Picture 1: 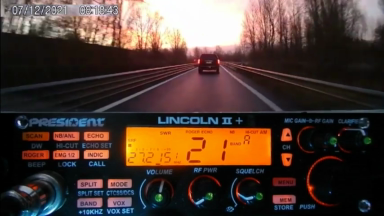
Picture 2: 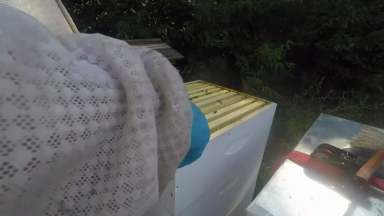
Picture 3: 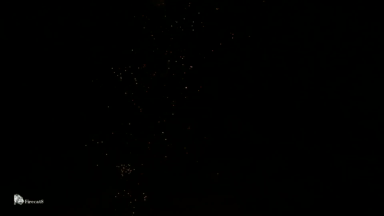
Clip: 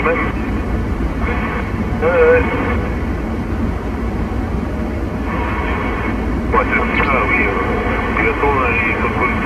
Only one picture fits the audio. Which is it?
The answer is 1